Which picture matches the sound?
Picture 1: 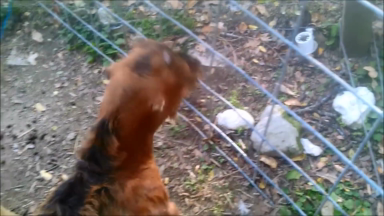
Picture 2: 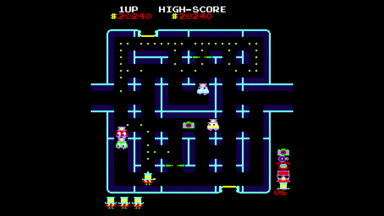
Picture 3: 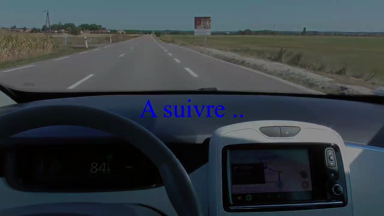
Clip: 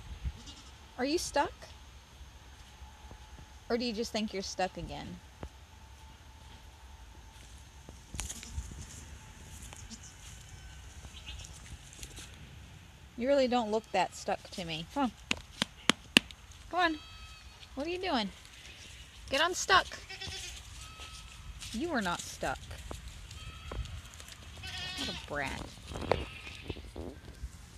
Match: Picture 1